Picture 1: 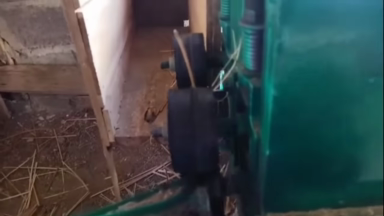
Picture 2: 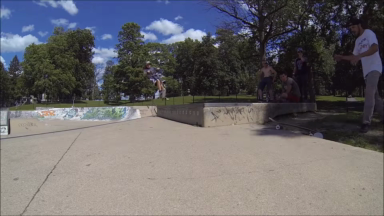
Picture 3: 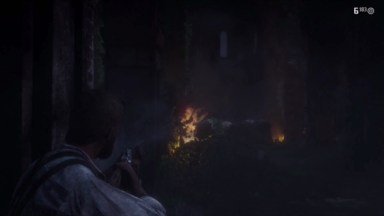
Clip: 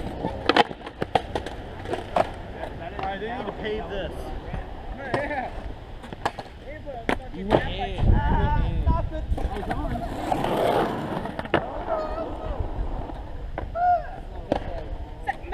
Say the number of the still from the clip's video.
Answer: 2